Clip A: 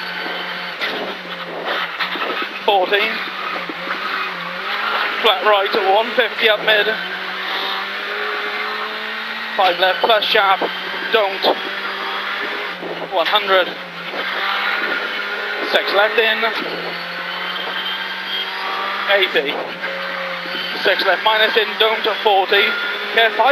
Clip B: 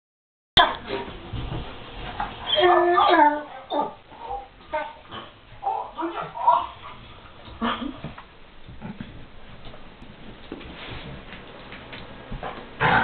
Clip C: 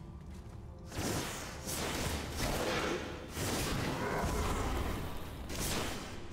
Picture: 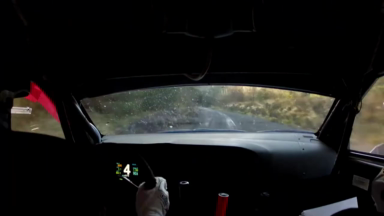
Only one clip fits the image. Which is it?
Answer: A